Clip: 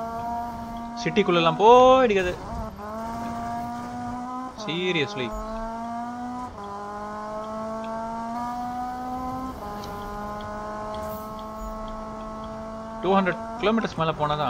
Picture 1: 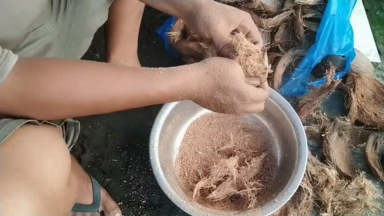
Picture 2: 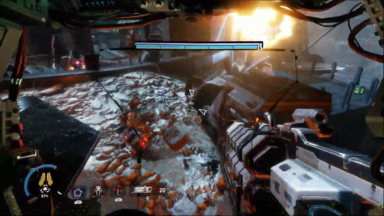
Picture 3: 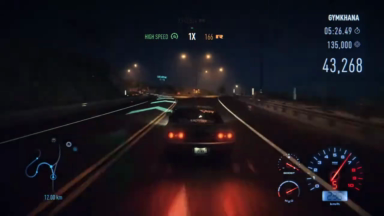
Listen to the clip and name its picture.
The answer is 3